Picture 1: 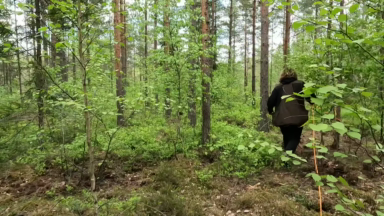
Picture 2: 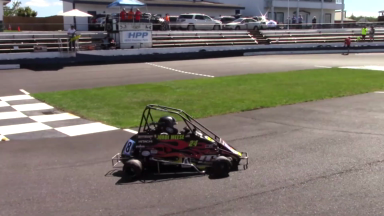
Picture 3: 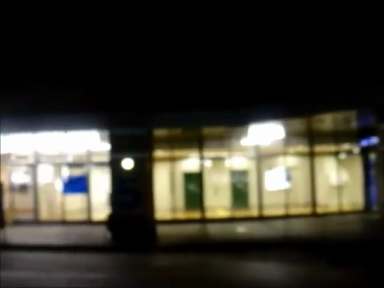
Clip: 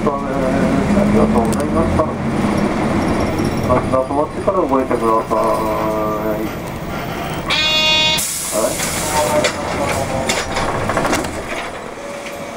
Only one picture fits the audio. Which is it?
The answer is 3